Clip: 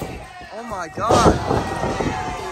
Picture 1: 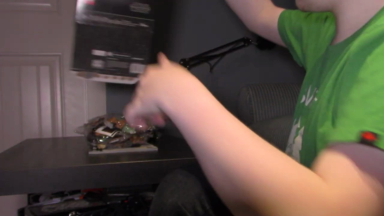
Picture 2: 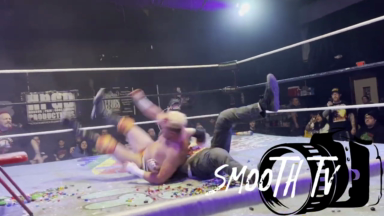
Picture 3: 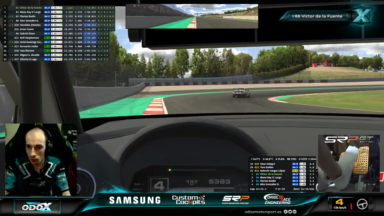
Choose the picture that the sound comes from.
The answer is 2